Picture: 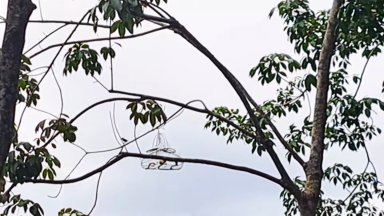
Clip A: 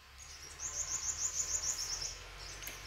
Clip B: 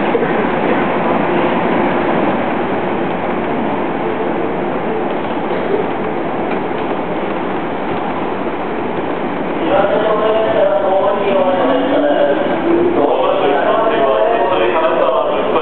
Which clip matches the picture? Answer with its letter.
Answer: A